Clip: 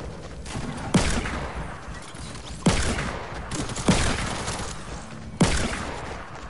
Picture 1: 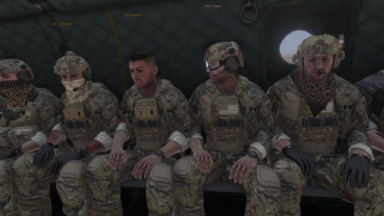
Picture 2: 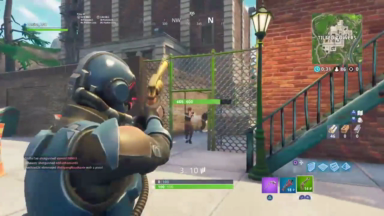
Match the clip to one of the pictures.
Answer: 2